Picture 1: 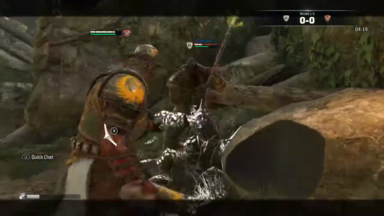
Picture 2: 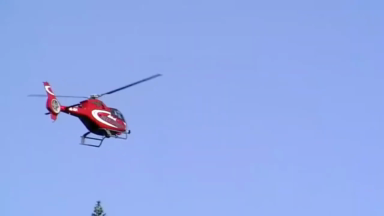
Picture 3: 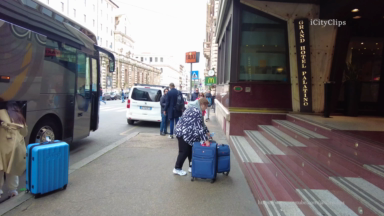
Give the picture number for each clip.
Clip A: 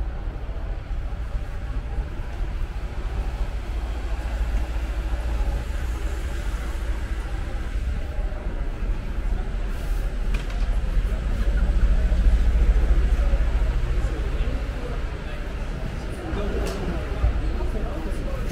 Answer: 3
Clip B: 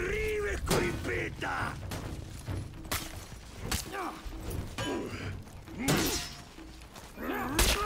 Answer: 1